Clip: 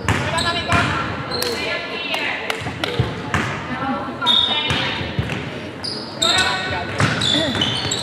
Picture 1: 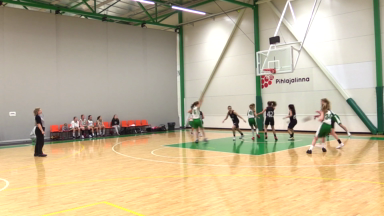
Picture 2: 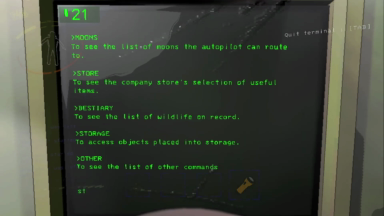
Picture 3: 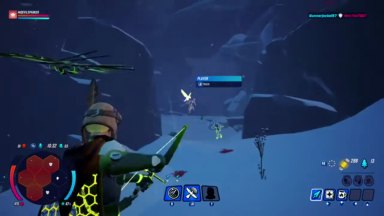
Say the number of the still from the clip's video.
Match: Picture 1